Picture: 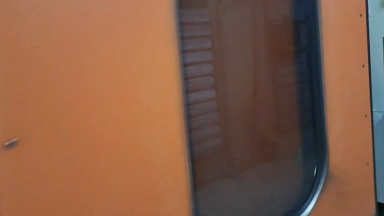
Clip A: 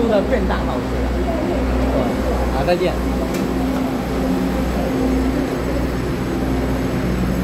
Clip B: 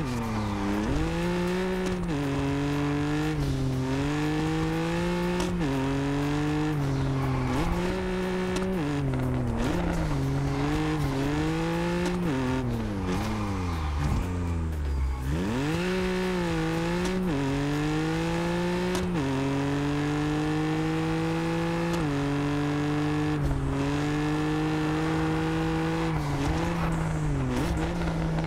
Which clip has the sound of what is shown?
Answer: A